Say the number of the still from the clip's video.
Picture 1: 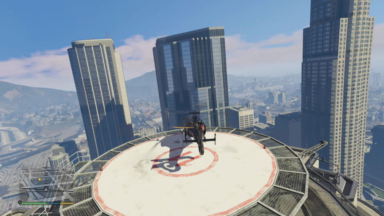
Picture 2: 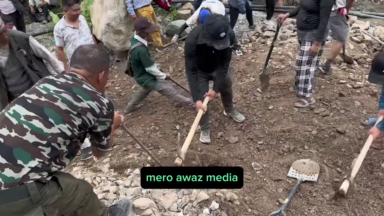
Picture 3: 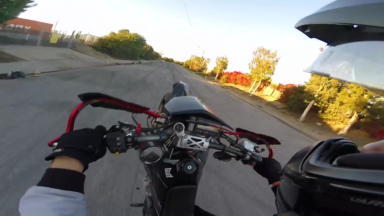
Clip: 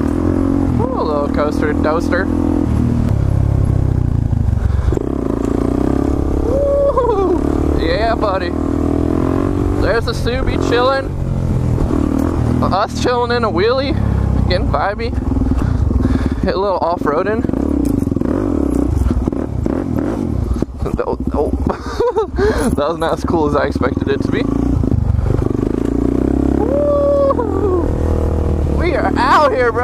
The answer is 3